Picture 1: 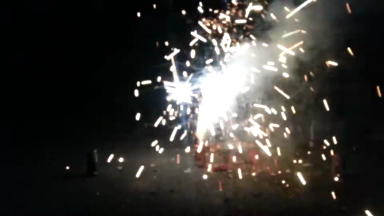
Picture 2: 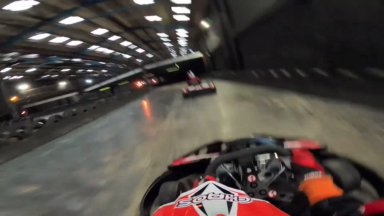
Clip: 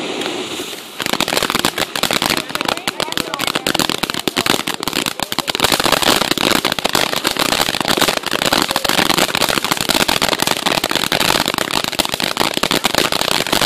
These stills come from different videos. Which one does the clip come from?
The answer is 1